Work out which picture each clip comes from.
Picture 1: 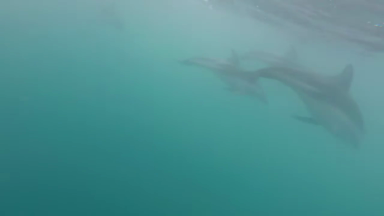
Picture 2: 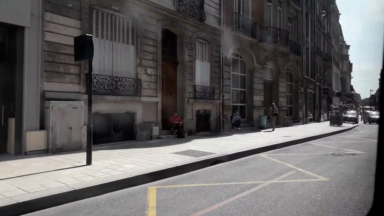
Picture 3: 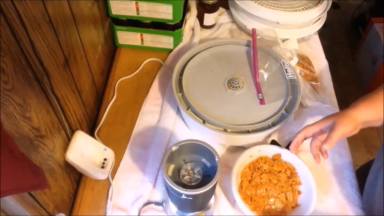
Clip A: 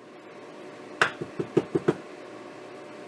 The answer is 3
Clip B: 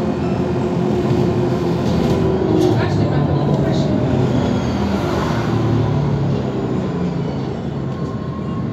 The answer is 2